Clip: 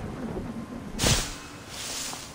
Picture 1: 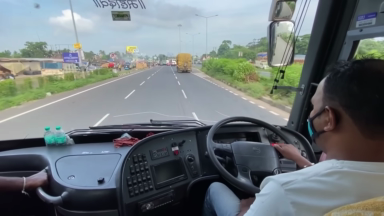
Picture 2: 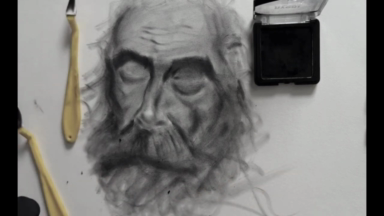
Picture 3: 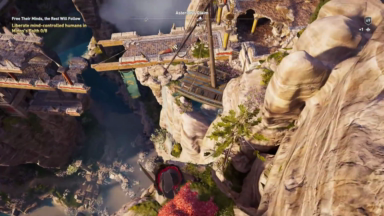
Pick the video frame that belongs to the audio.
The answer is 3